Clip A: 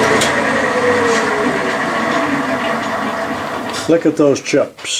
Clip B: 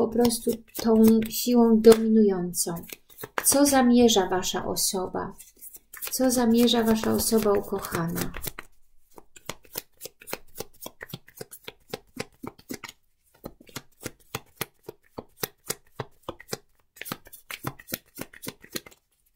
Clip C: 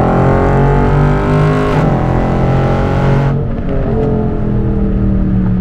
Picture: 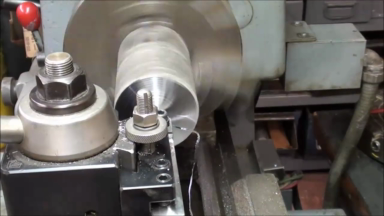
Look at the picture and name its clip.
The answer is A